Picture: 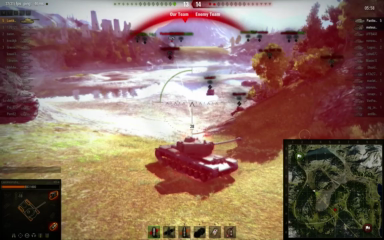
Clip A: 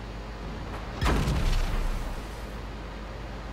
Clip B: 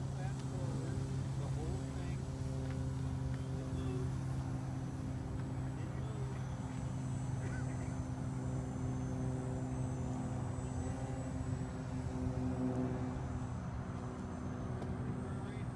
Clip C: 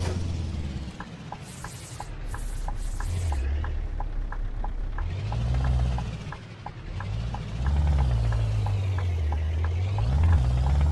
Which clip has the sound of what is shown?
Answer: A